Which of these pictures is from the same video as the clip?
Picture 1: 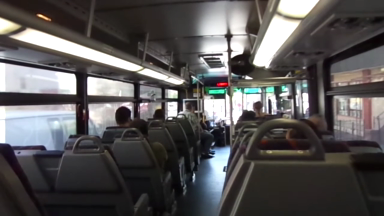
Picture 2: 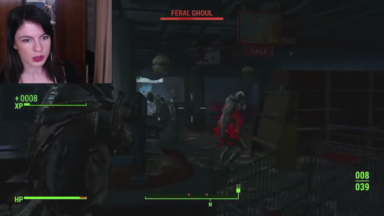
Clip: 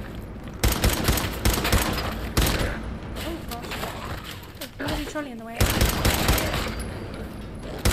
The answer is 2